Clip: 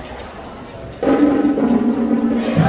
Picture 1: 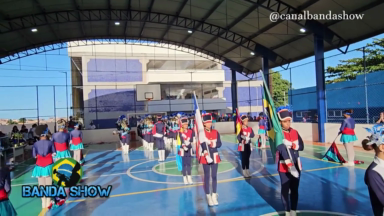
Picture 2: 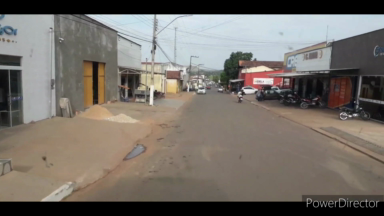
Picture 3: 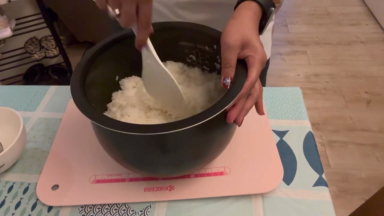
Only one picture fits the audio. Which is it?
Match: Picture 1